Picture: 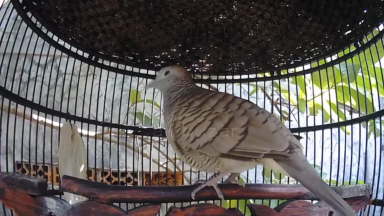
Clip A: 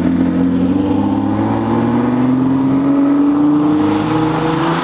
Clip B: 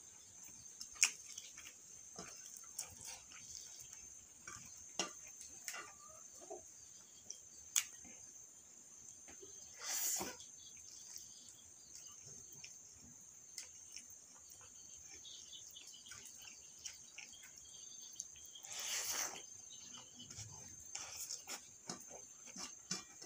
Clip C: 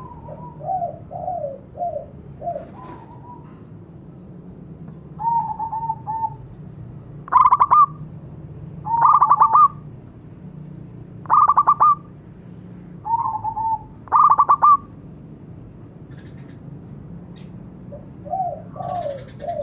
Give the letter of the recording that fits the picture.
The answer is C